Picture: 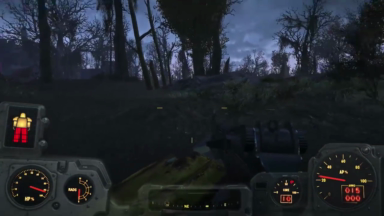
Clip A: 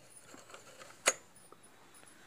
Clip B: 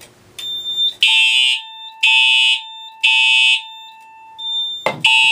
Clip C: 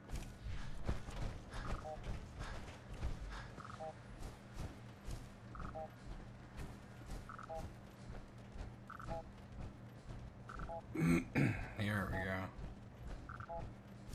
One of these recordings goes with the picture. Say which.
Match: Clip C